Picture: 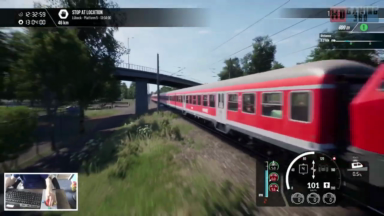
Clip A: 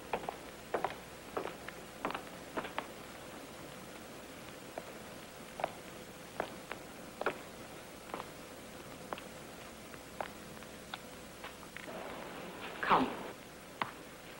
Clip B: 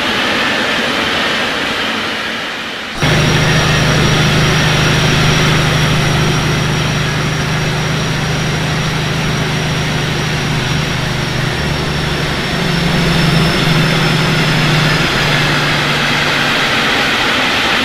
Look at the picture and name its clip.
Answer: B